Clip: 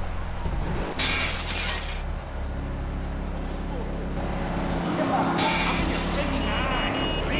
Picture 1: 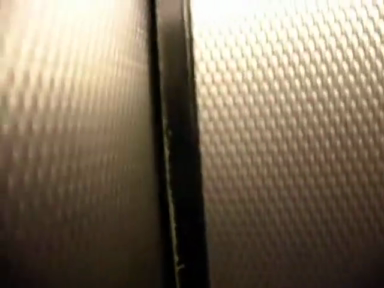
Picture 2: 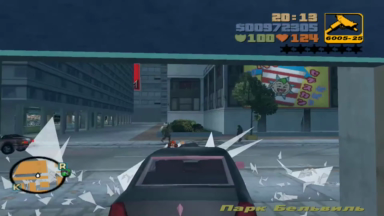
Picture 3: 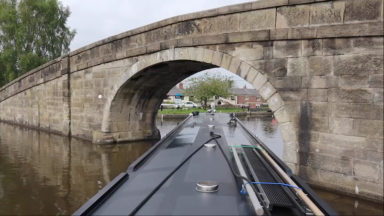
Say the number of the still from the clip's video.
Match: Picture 2